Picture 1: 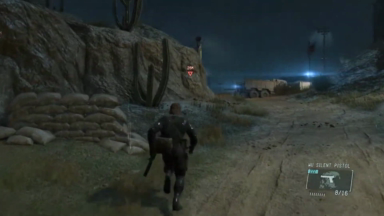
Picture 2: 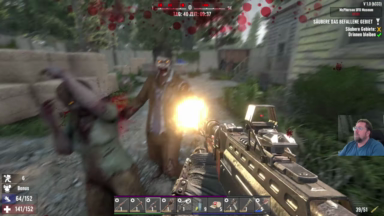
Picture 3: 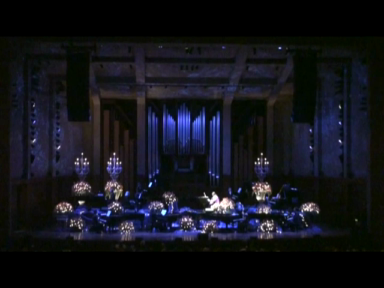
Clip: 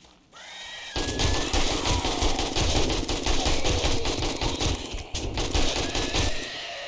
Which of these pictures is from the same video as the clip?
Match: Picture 2